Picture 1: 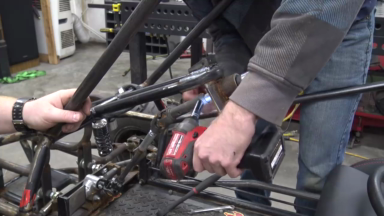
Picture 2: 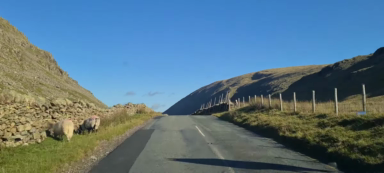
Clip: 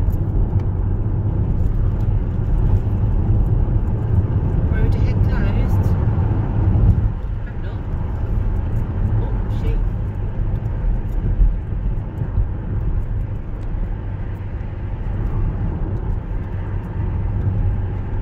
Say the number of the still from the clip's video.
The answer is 2